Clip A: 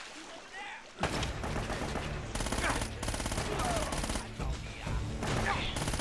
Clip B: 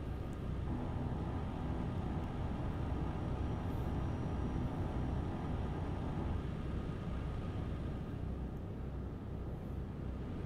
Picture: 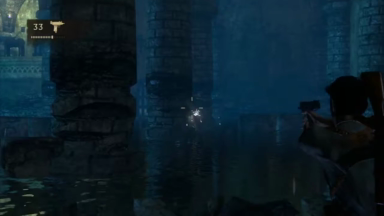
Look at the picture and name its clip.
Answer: A